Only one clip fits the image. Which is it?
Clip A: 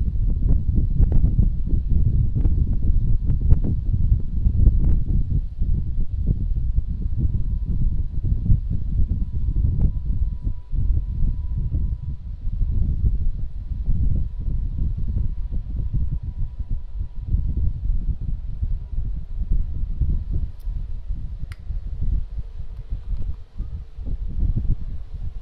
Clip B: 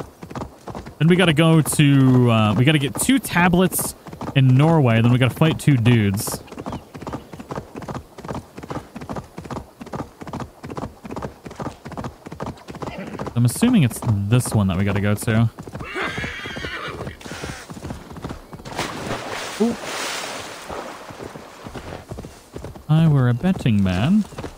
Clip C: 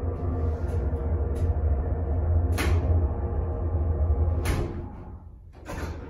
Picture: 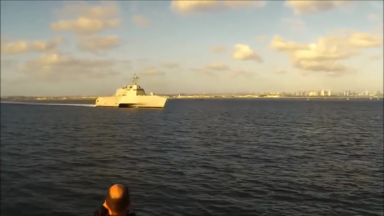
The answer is A